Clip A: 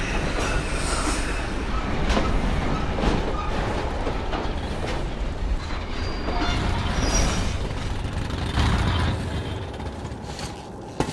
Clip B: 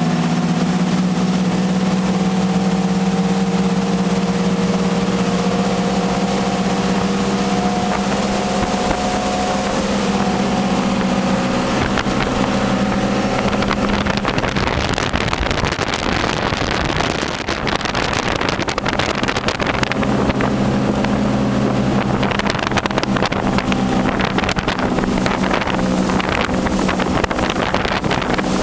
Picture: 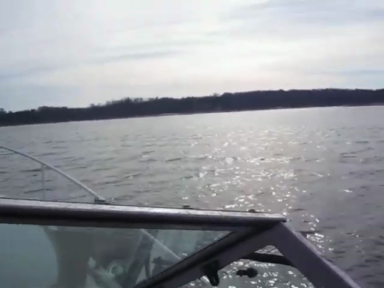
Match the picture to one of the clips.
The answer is B